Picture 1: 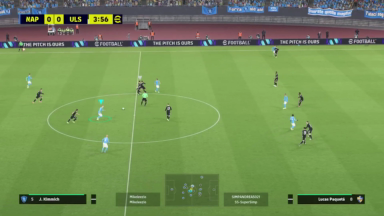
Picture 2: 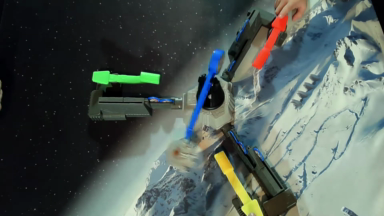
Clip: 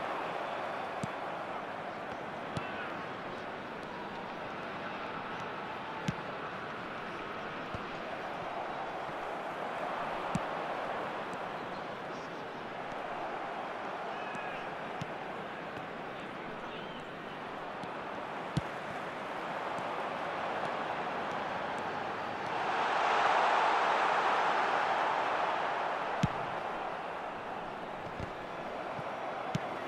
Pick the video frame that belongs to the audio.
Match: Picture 1